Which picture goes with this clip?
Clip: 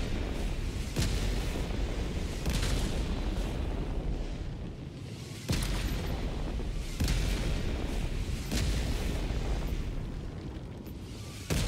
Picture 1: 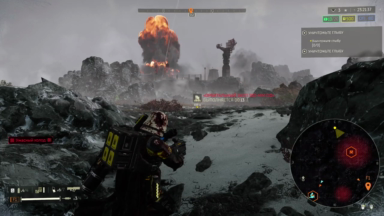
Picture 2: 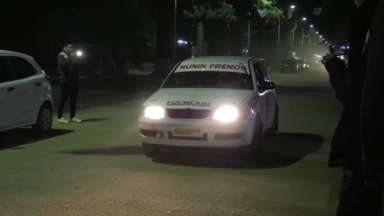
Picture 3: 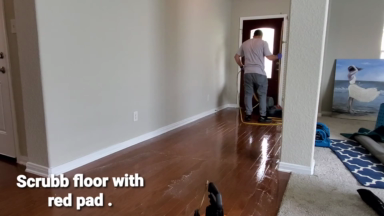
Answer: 1